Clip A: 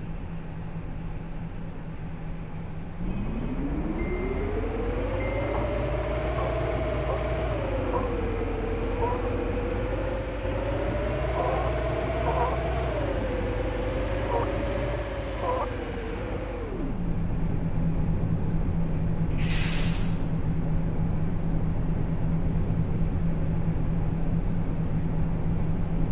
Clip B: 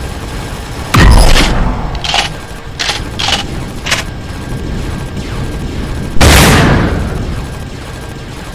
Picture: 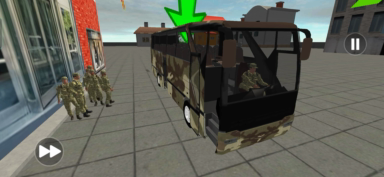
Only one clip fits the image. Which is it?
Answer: A